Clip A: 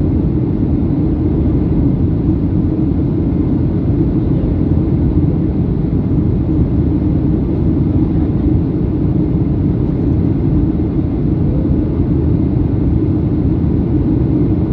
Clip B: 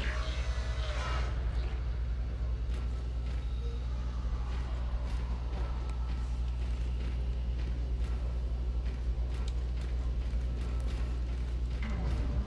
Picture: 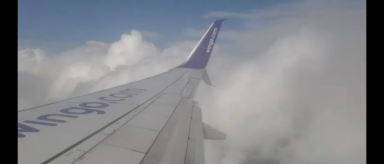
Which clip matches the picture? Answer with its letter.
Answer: A